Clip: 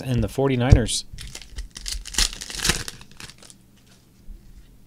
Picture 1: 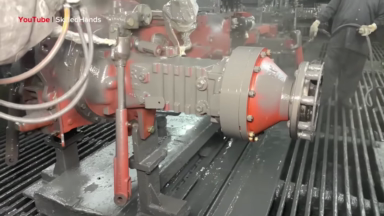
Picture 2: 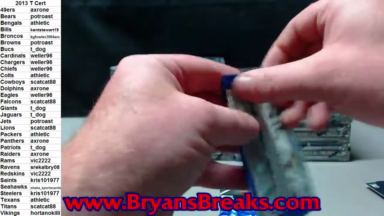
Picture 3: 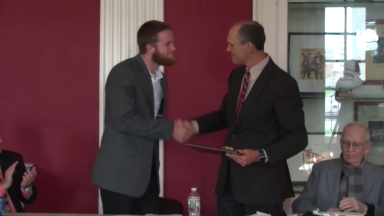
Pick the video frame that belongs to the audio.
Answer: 2